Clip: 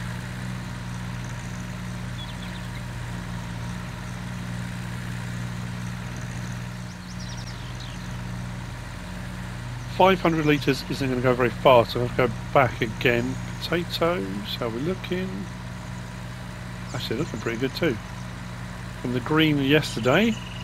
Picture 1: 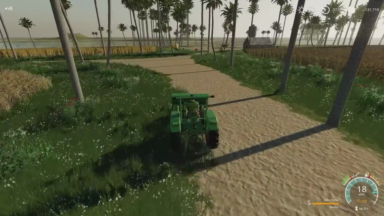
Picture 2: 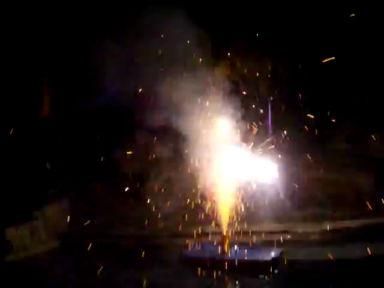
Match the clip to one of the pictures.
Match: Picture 1